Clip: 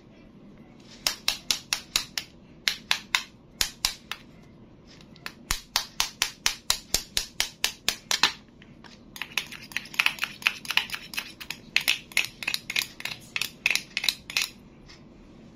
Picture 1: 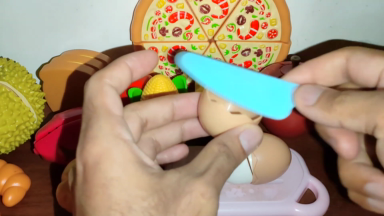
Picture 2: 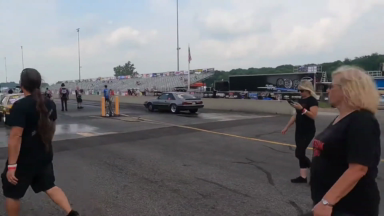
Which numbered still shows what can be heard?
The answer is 1